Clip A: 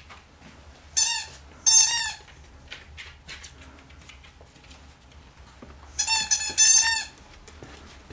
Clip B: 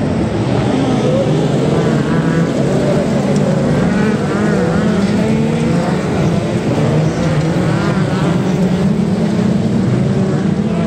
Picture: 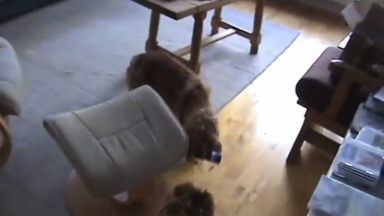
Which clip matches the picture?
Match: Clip A